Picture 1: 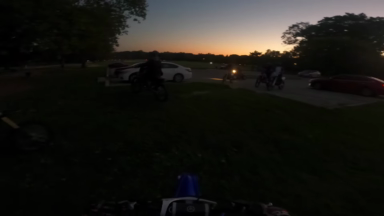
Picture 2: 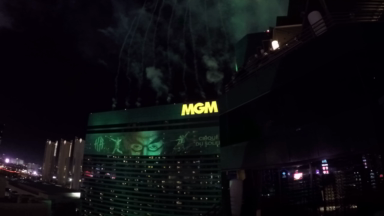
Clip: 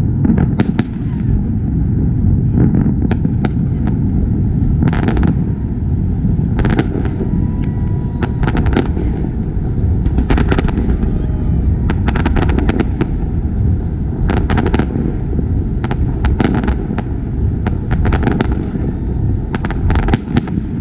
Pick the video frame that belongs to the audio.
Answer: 2